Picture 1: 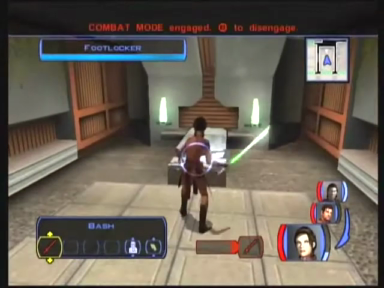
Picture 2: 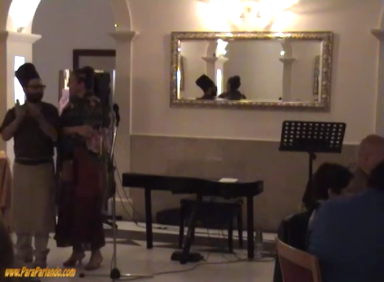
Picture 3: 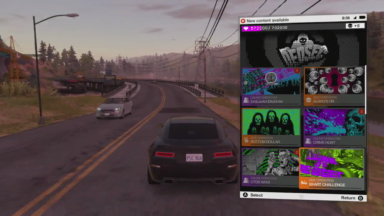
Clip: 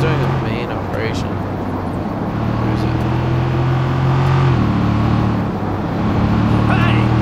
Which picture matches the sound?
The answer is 3